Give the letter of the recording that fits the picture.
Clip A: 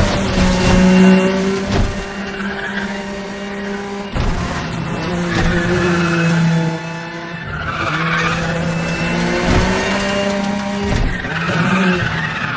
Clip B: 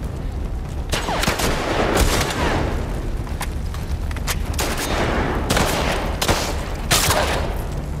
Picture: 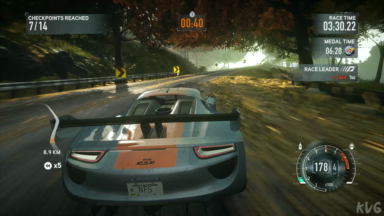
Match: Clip A